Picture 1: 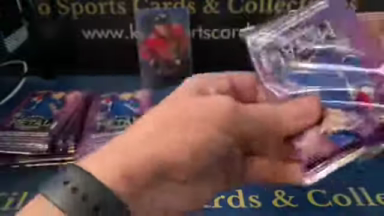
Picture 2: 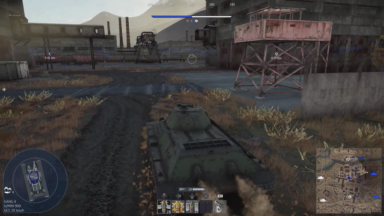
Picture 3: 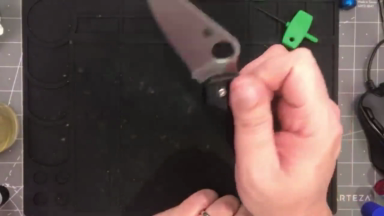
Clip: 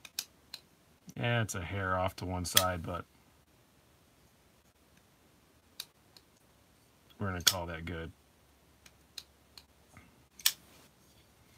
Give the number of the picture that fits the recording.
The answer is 3